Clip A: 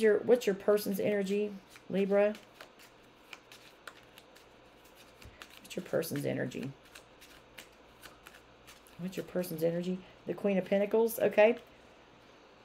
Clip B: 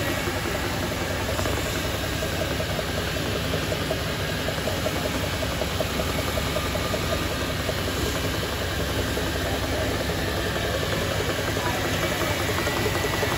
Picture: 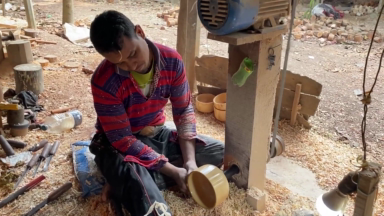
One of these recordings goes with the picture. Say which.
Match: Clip B